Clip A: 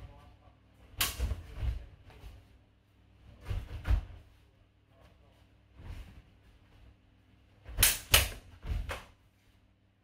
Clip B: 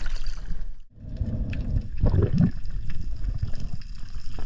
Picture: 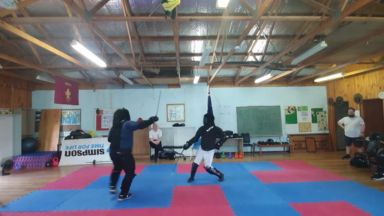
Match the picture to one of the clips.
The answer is A